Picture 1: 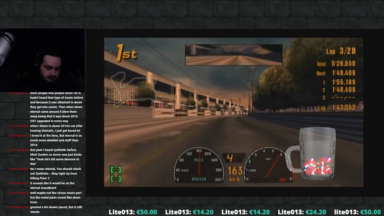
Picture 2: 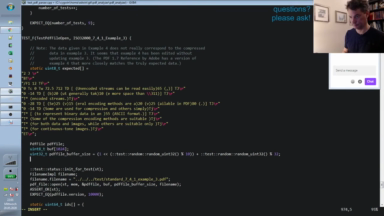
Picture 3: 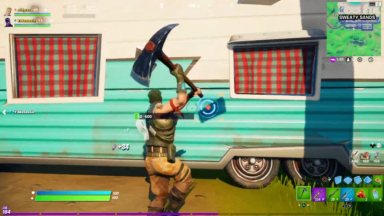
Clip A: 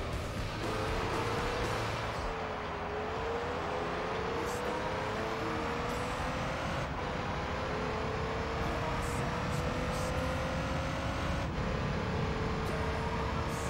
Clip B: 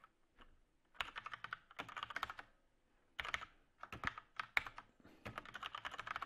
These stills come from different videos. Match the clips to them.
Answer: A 1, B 2